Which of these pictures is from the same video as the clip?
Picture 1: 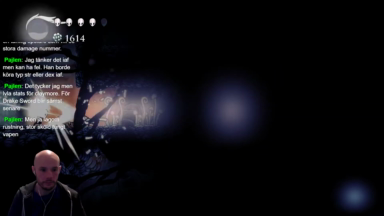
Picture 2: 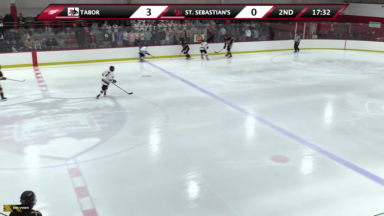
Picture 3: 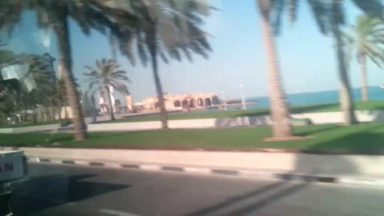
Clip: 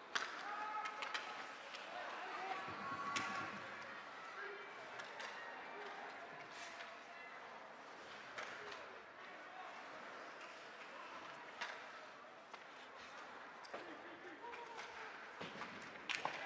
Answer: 2